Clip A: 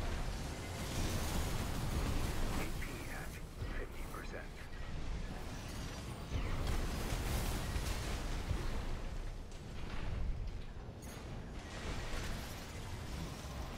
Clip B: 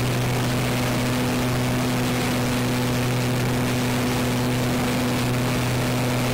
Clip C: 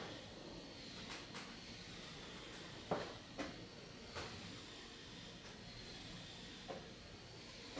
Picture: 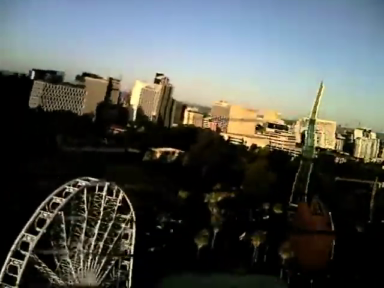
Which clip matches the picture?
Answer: B